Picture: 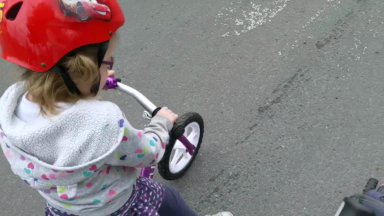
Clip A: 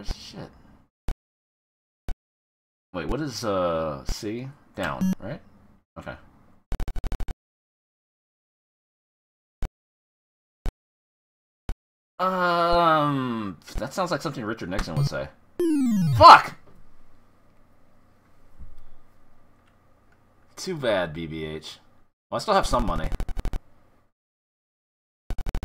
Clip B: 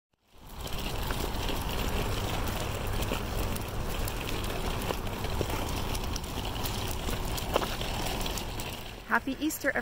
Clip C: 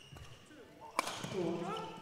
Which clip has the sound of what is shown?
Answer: B